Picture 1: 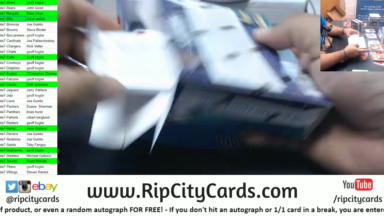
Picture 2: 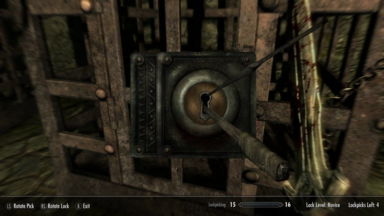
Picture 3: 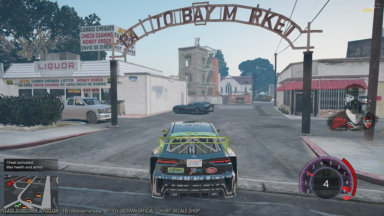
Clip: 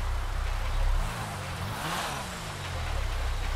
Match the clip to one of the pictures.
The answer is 3